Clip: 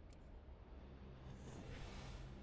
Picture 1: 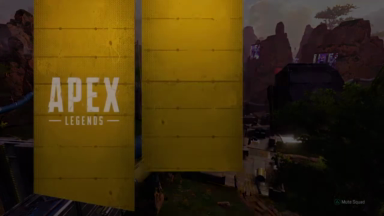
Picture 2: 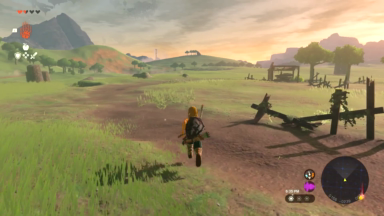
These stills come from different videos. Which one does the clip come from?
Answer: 1